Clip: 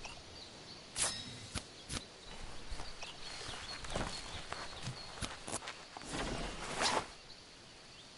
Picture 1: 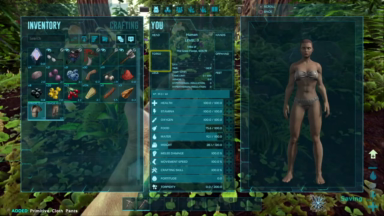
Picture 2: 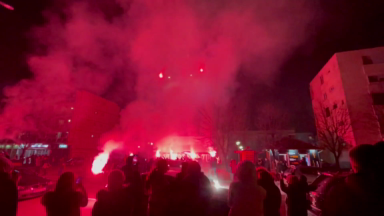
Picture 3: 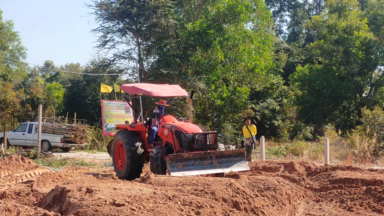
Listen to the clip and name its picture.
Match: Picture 1